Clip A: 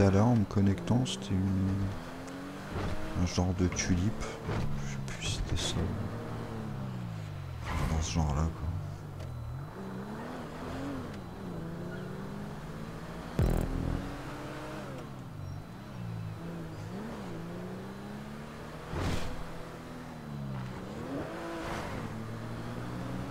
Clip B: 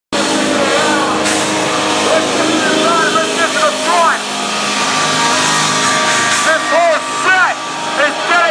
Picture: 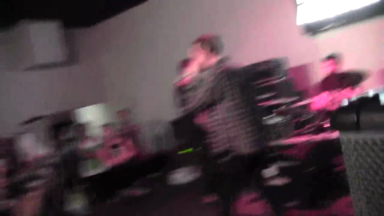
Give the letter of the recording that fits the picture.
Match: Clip B